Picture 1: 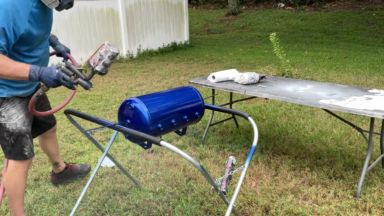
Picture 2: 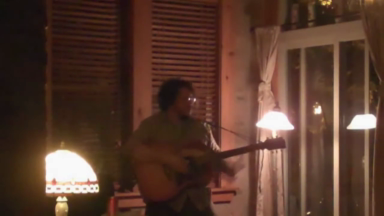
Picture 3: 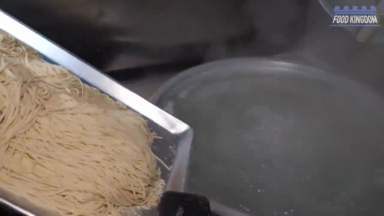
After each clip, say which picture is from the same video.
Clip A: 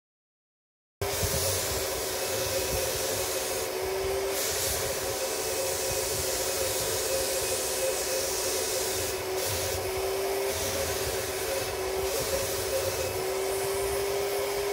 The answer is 1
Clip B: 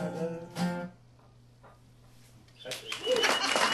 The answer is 2